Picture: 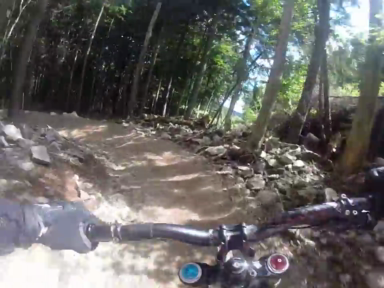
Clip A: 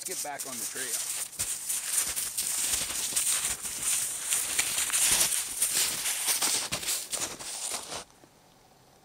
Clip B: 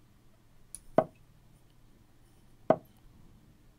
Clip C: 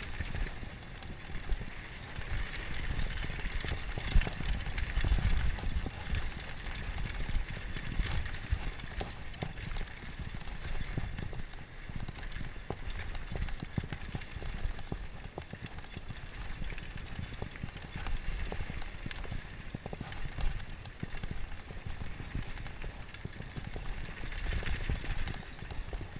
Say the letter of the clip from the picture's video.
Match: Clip C